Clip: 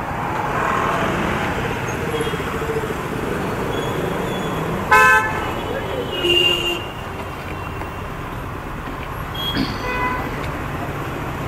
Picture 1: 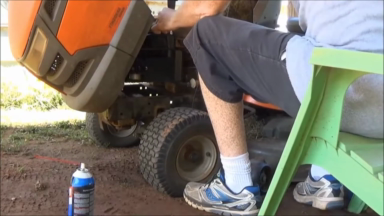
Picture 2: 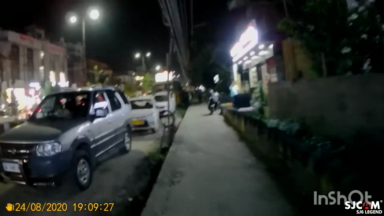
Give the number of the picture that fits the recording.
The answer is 2